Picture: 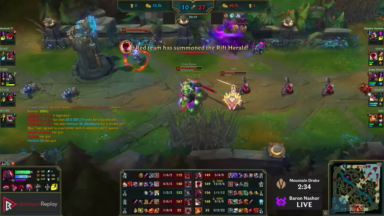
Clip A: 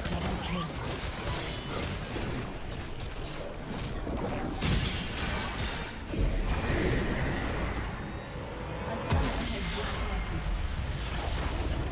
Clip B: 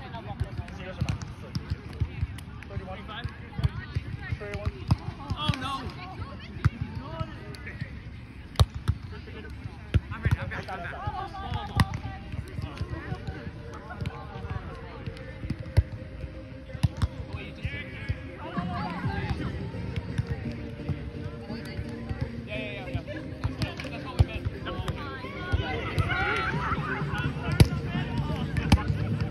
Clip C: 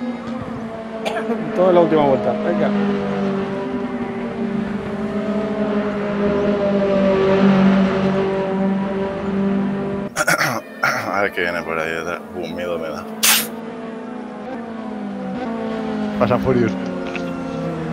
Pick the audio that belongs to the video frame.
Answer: A